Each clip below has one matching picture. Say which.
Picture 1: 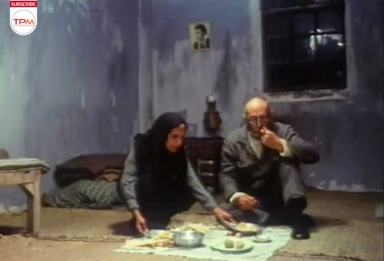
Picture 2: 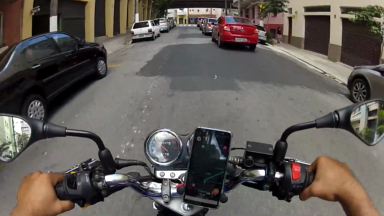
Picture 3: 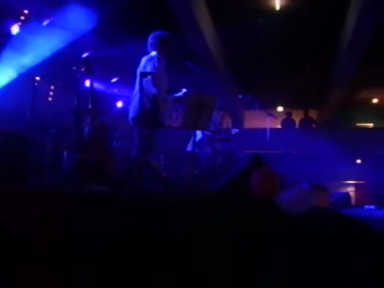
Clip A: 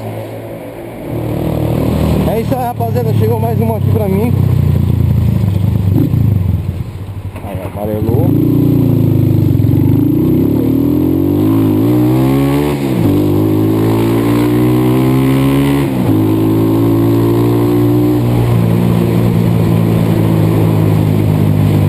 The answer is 2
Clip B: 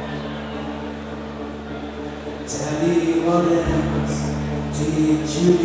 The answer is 3